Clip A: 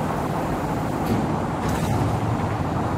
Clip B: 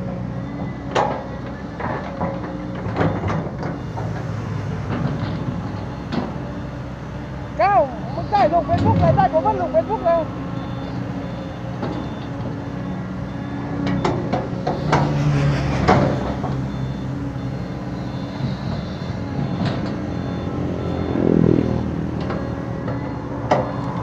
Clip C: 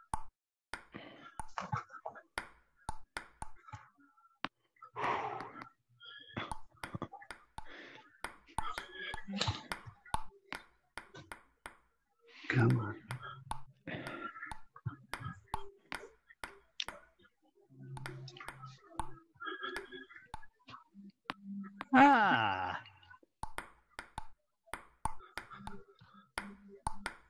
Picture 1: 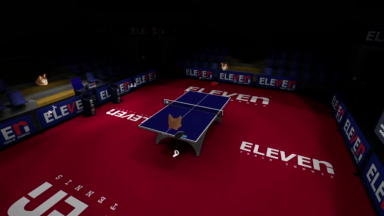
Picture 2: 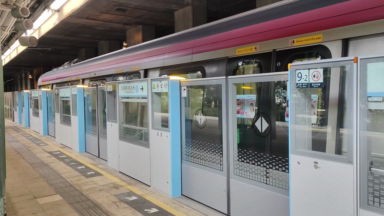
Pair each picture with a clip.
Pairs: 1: C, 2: A